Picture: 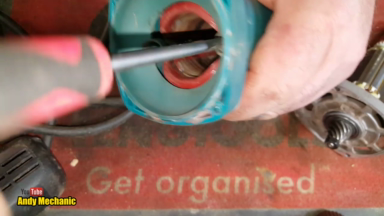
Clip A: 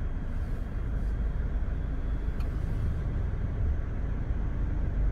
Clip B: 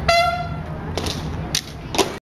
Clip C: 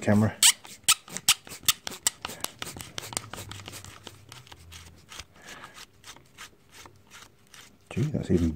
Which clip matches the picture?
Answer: C